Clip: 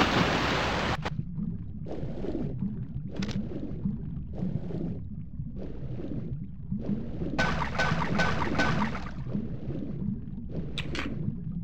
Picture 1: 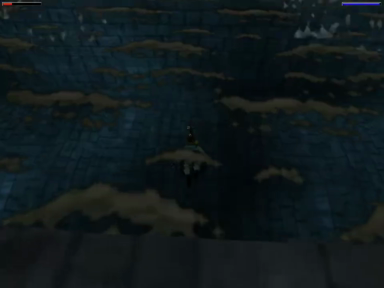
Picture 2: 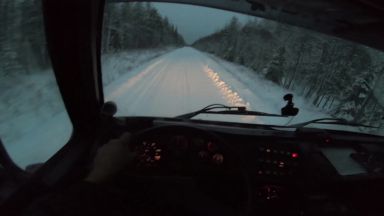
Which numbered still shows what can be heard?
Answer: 1